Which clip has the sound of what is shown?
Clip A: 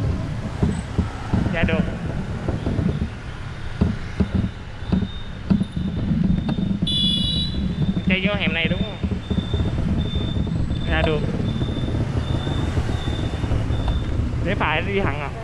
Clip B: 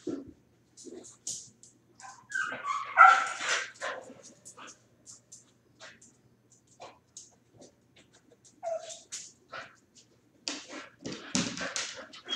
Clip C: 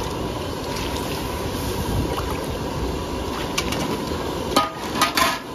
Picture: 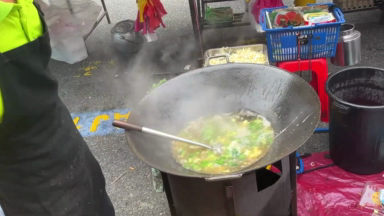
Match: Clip C